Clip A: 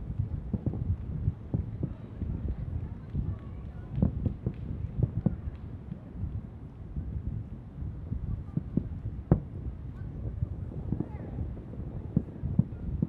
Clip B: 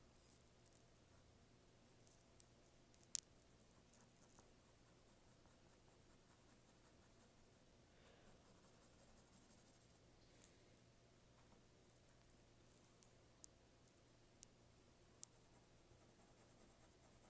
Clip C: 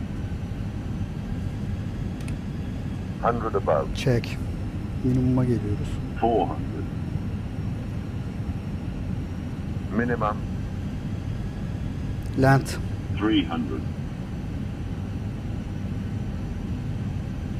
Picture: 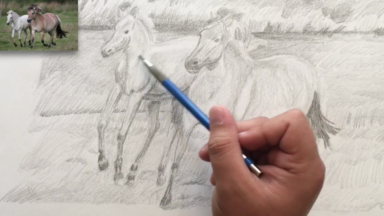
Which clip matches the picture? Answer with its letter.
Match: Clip B